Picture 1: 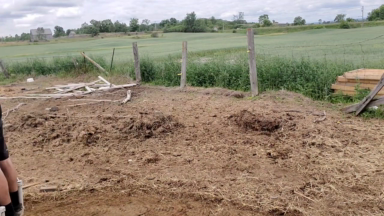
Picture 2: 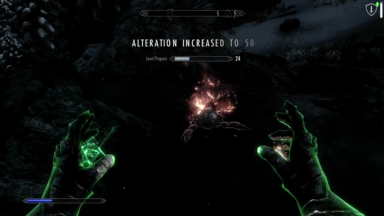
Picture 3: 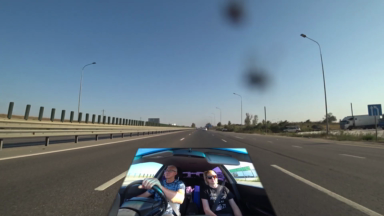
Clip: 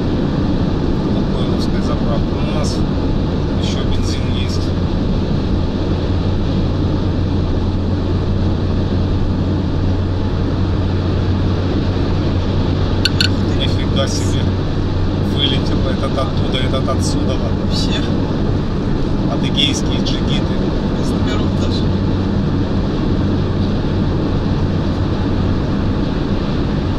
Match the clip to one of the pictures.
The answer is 3